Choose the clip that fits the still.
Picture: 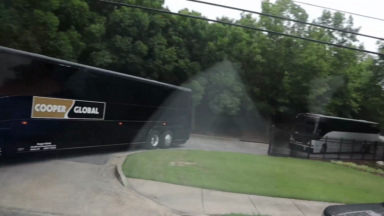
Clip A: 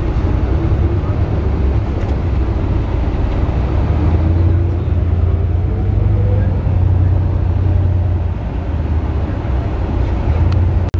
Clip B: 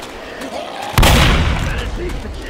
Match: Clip A